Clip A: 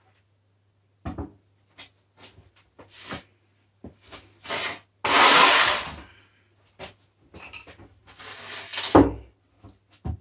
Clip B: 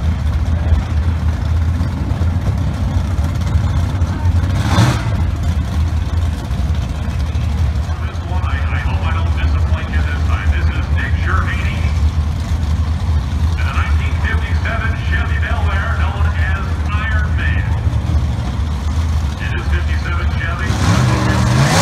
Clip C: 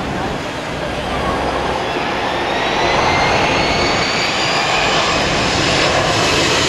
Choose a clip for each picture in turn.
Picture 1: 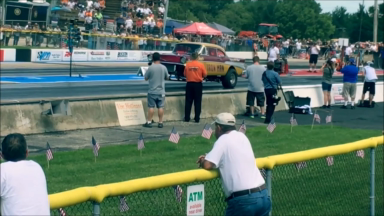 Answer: B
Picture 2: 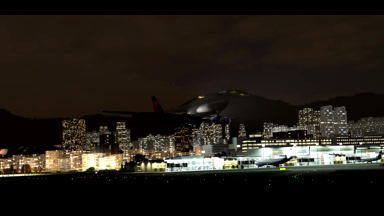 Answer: C